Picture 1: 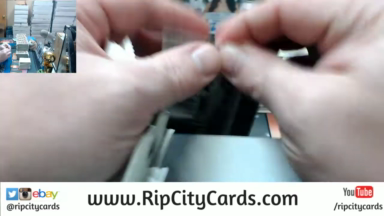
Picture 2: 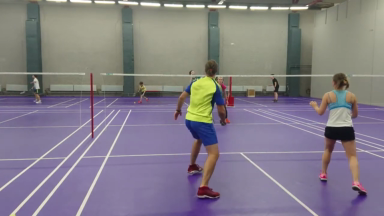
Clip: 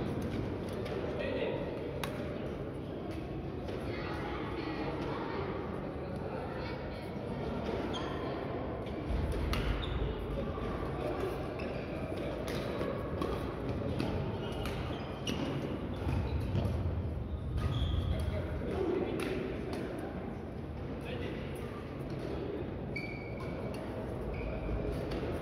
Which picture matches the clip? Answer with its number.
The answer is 2